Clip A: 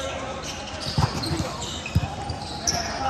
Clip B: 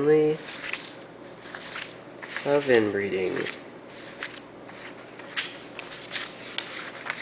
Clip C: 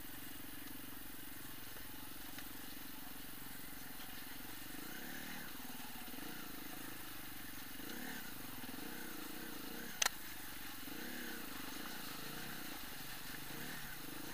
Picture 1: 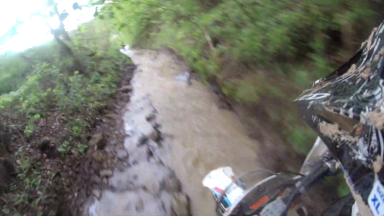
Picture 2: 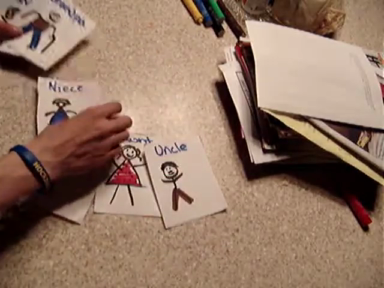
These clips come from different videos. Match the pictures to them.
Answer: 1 C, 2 B